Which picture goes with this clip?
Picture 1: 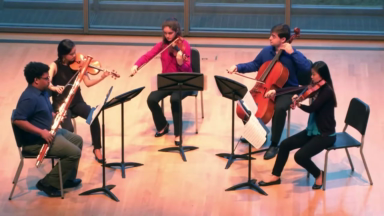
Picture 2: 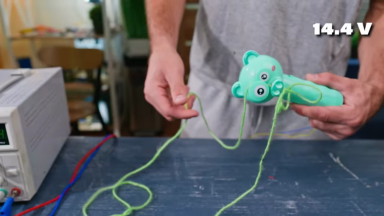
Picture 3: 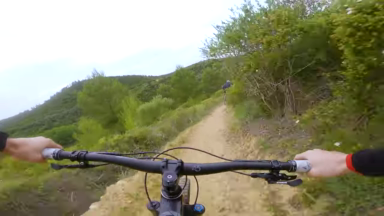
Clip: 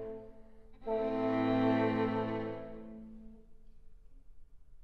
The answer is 1